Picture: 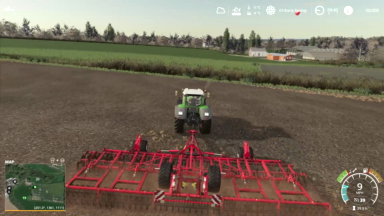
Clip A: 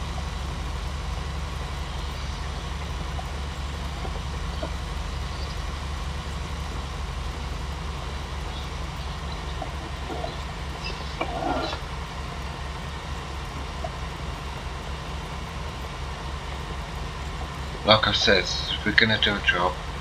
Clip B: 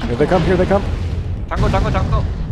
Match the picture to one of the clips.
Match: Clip A